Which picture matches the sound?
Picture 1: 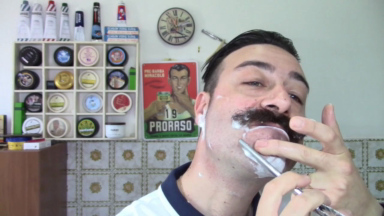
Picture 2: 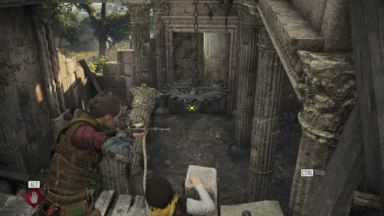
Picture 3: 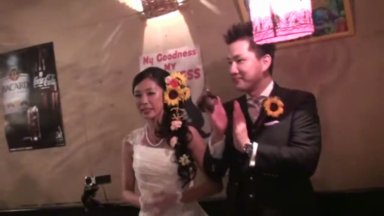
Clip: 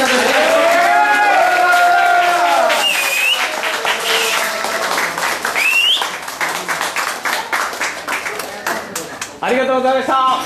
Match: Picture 3